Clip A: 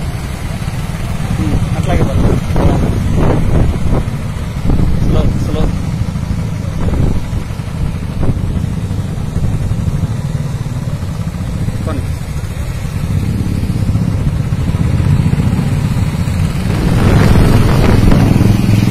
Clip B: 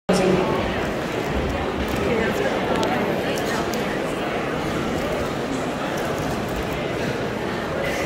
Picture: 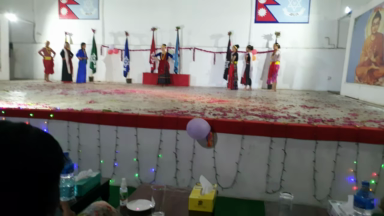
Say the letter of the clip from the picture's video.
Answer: B